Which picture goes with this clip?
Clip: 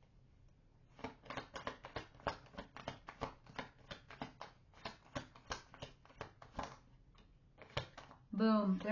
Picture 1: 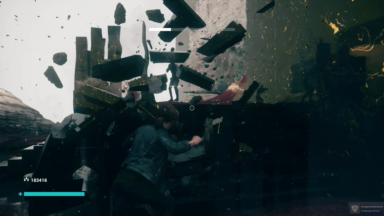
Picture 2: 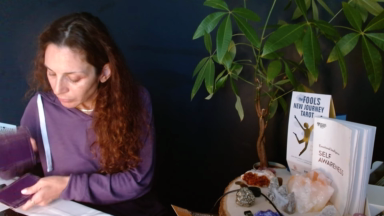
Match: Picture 2